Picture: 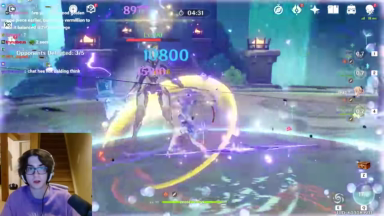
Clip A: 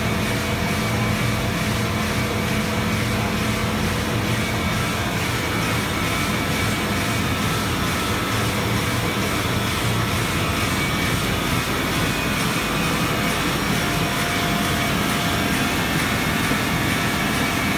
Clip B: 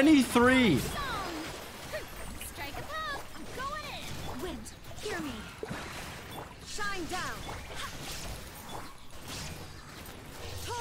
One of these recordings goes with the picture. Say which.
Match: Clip B